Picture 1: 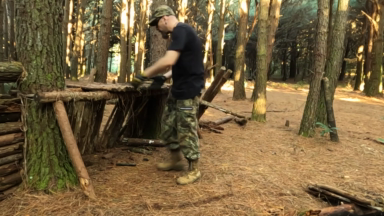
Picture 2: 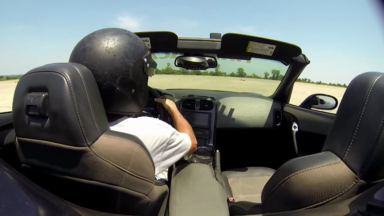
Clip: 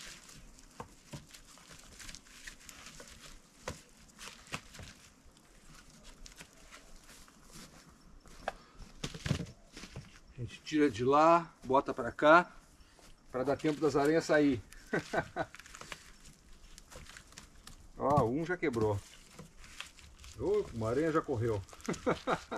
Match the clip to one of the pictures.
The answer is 1